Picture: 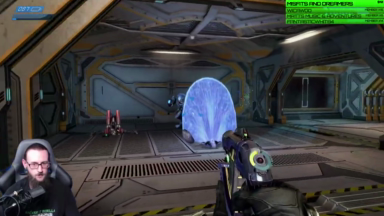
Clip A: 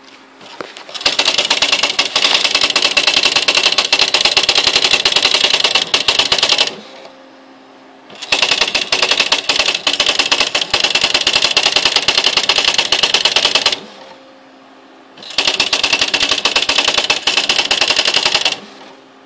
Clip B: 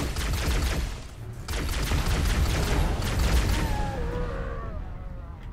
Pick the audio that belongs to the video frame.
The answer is B